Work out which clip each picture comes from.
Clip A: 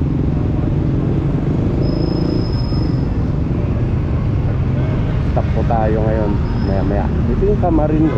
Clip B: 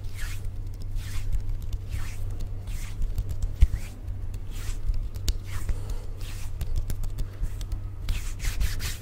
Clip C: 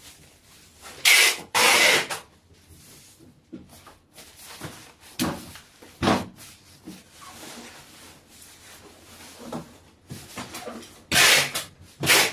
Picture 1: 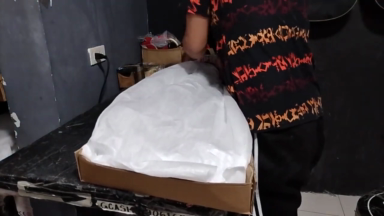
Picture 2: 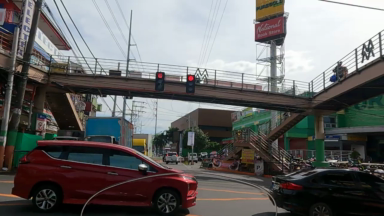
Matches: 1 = C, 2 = A